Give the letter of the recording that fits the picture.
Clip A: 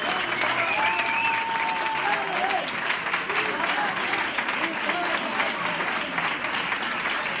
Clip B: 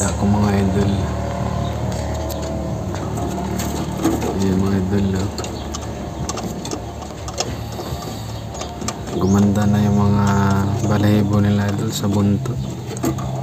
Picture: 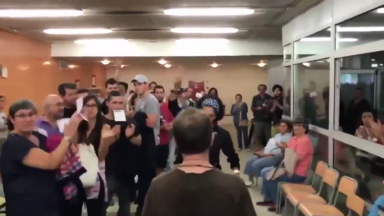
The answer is A